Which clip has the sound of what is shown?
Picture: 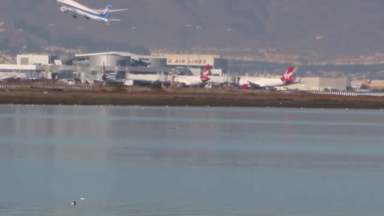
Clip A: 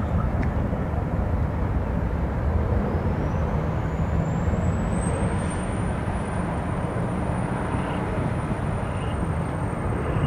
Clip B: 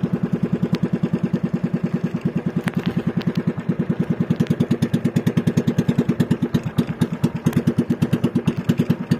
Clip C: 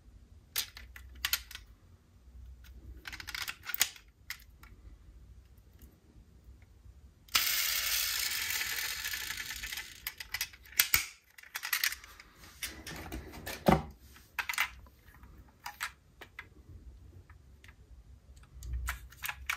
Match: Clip A